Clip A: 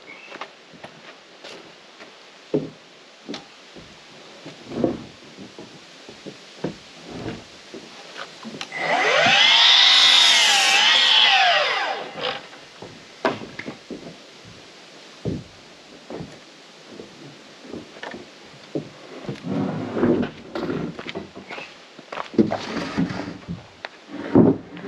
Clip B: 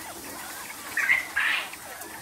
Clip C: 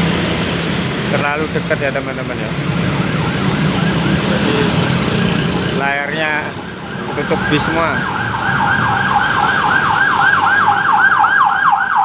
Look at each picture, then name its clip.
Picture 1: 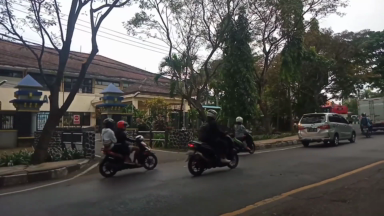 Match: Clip C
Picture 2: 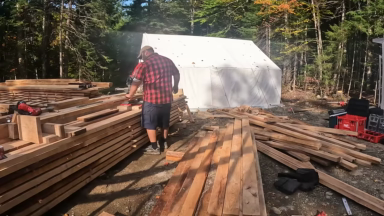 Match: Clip A